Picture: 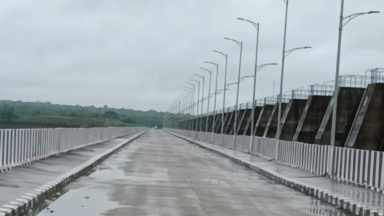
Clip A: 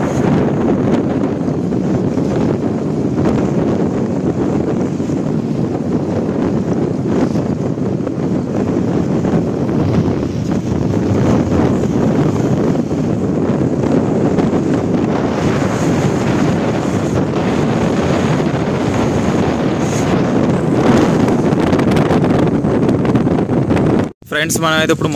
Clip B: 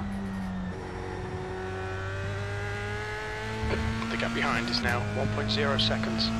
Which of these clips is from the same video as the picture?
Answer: A